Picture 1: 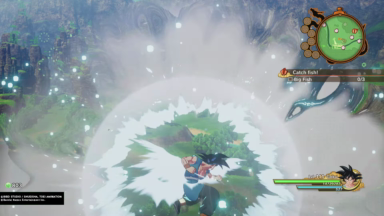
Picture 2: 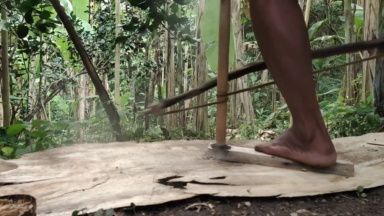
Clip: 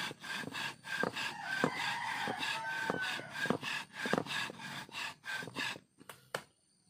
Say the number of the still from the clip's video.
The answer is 2